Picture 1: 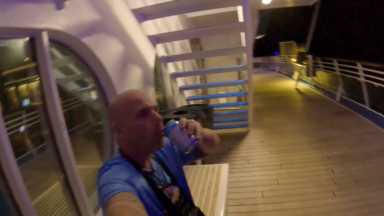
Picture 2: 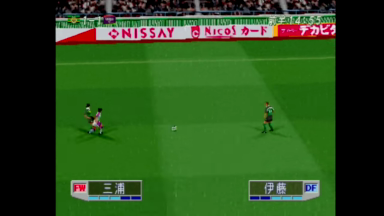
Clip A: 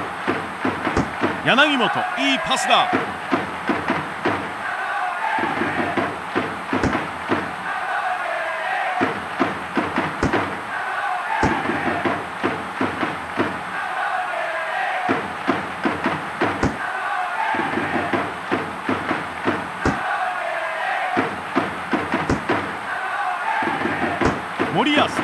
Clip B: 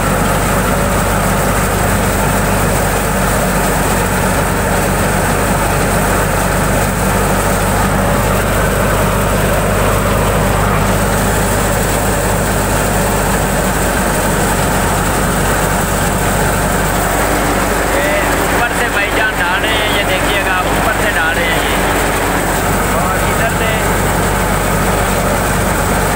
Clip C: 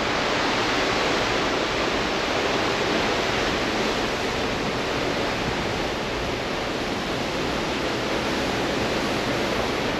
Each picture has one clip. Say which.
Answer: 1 C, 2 A